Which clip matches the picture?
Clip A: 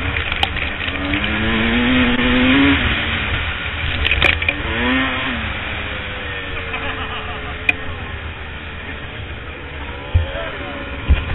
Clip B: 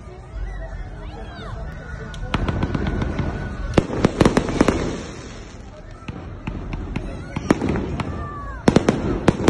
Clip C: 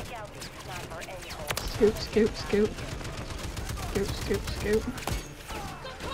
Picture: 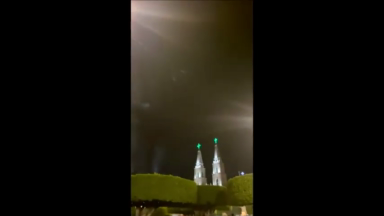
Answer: B